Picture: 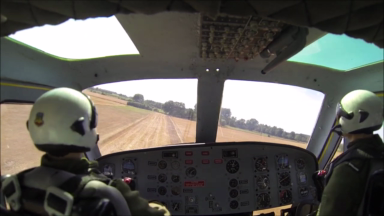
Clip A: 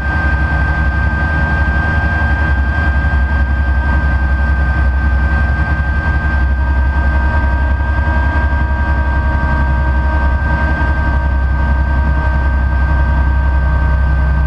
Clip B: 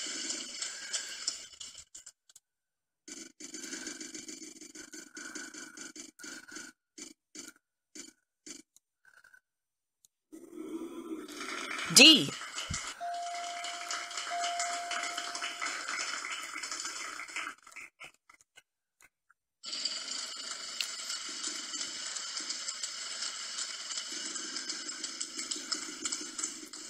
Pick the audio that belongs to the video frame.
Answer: A